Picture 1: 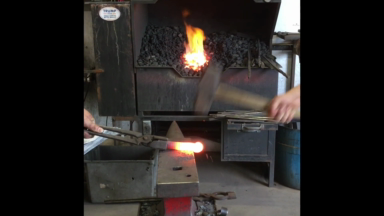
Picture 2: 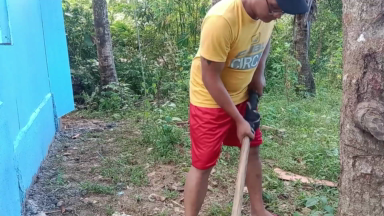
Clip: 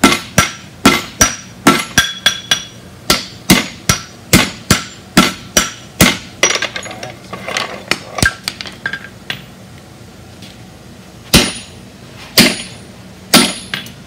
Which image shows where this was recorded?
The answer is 1